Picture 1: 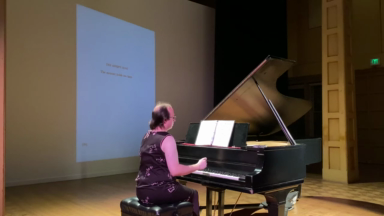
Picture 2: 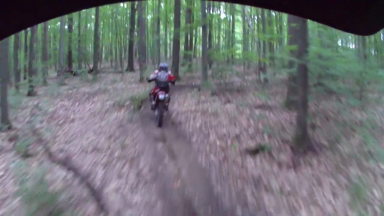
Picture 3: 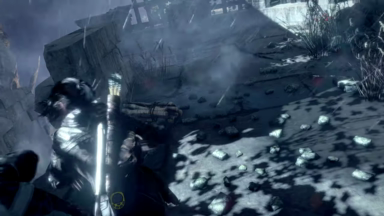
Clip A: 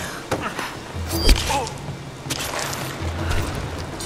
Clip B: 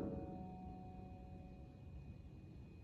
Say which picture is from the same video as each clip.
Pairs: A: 3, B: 1